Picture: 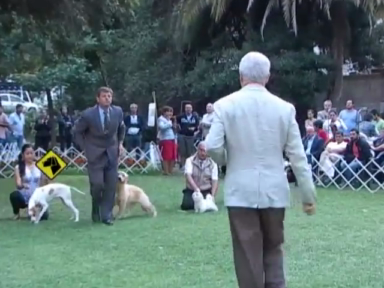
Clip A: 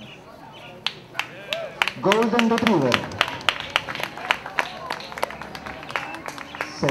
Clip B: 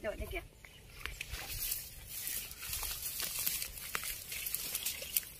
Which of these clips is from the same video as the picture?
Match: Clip A